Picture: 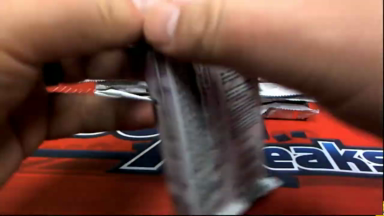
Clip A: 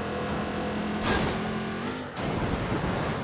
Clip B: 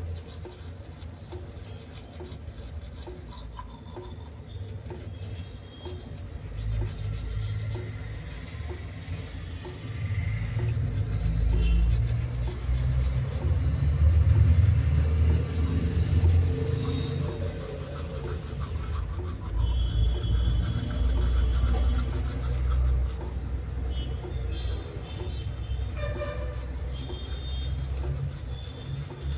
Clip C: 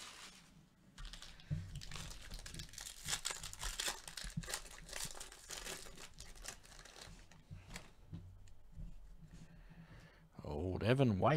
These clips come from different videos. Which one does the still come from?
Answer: C